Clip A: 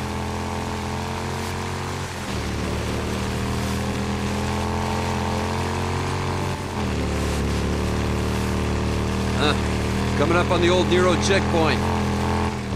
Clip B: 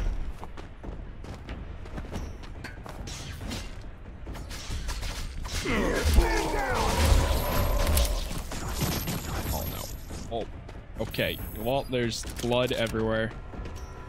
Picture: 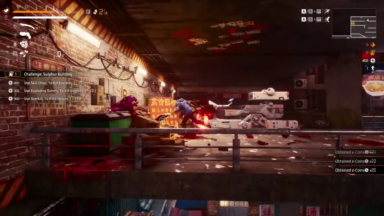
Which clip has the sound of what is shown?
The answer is B